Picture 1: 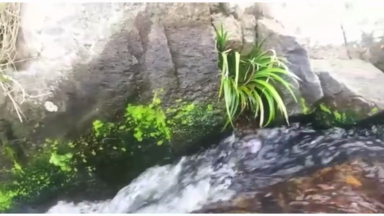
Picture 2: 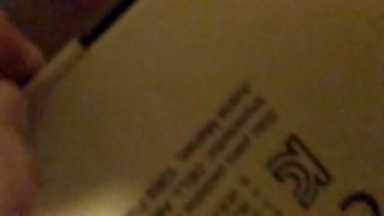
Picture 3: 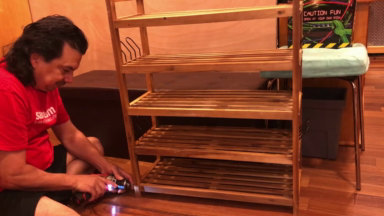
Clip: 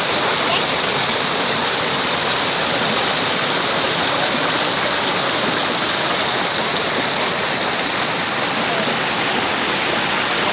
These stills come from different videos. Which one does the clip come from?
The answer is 1